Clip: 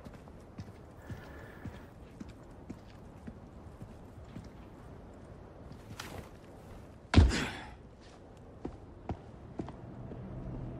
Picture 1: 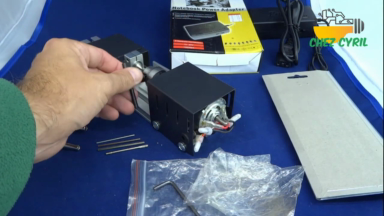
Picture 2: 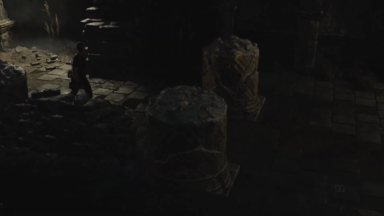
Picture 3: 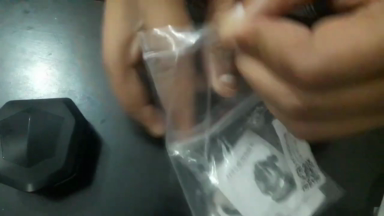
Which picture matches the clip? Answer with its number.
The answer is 2